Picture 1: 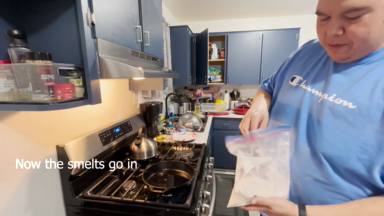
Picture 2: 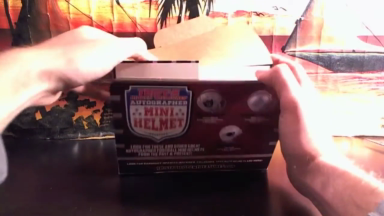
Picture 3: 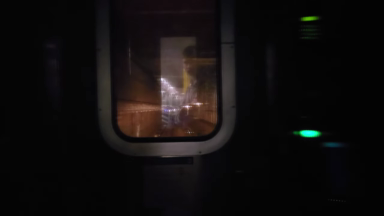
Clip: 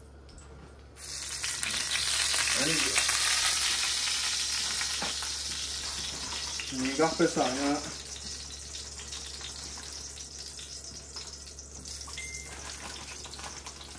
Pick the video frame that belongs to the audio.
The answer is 1